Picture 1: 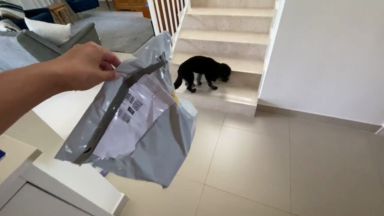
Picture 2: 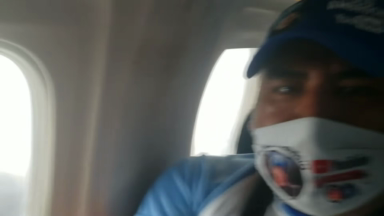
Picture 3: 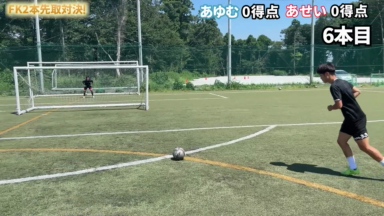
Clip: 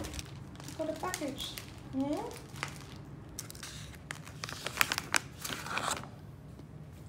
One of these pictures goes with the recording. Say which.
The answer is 1